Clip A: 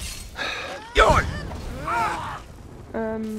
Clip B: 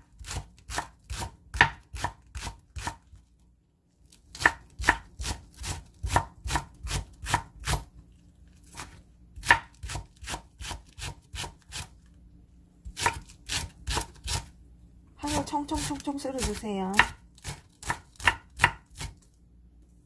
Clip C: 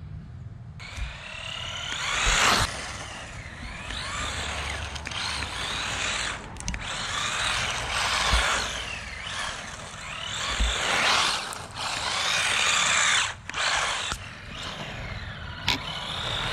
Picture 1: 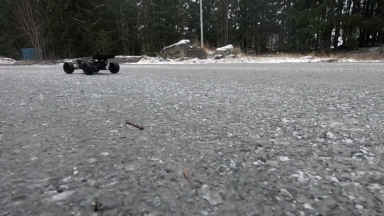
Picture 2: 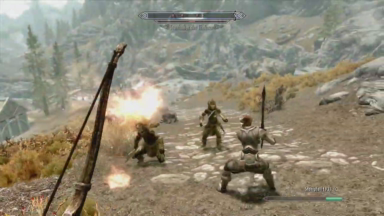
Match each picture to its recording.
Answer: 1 C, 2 A